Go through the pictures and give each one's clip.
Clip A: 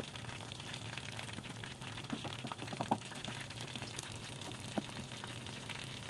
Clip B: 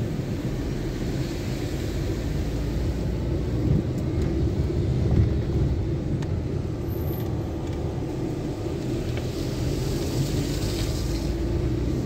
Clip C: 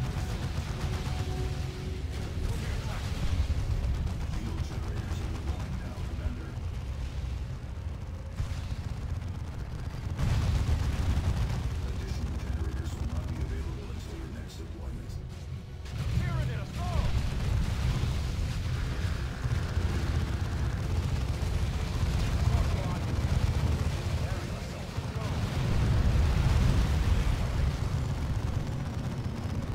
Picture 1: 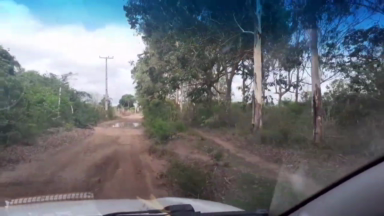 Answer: B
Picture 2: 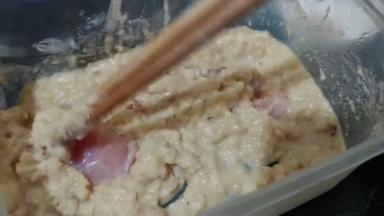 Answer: A